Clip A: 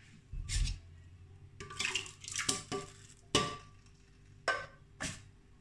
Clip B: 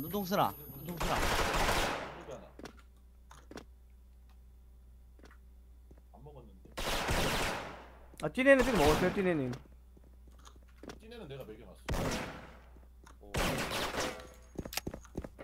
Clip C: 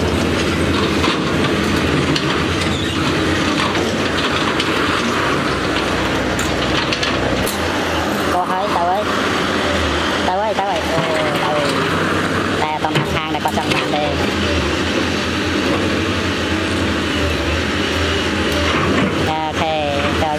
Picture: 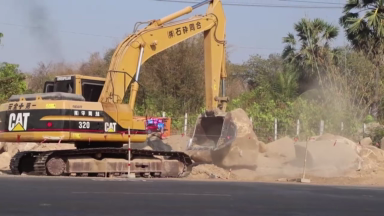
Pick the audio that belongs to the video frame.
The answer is C